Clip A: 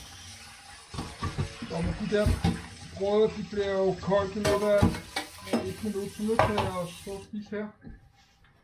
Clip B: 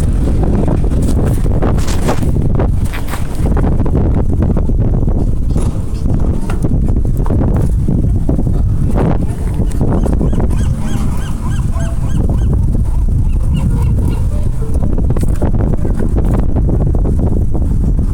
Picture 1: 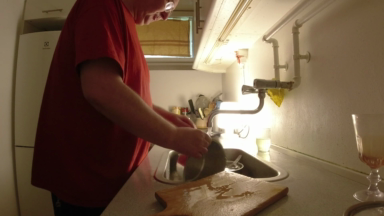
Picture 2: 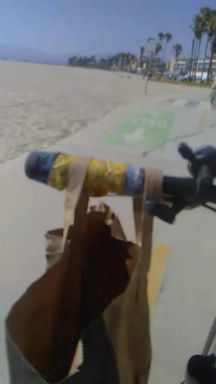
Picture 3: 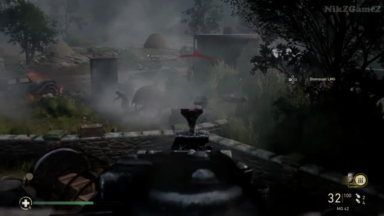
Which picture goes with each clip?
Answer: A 1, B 2